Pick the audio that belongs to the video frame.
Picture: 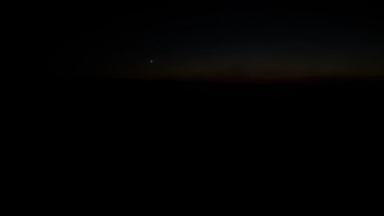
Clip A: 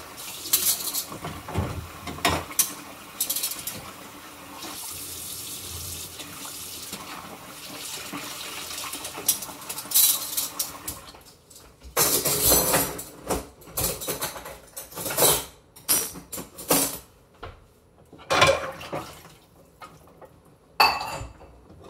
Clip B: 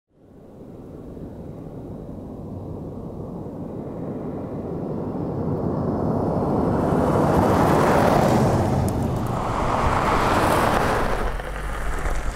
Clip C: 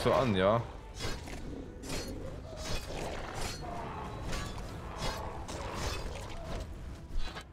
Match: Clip B